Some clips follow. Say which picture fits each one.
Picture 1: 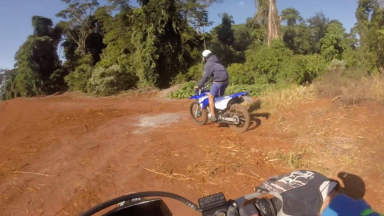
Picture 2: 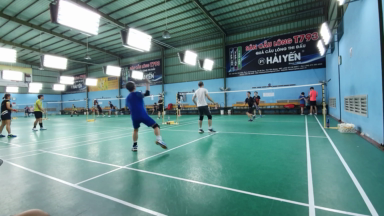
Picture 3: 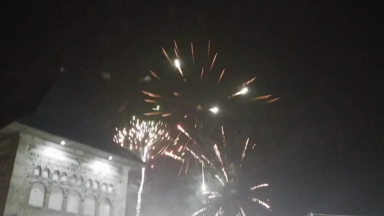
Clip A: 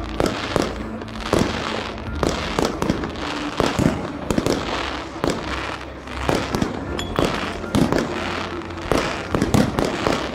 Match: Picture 3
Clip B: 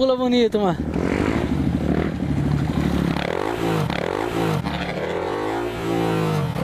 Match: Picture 1